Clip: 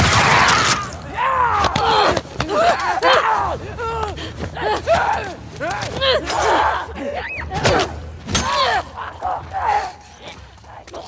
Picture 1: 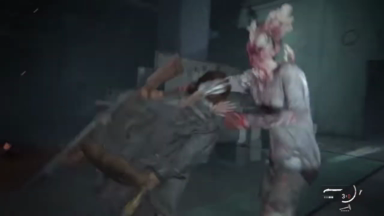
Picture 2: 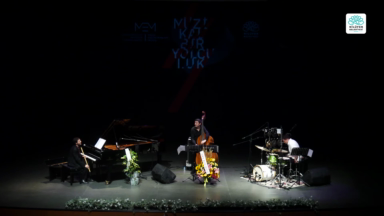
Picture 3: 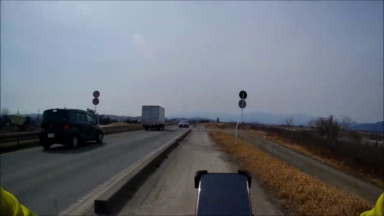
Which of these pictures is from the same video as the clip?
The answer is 1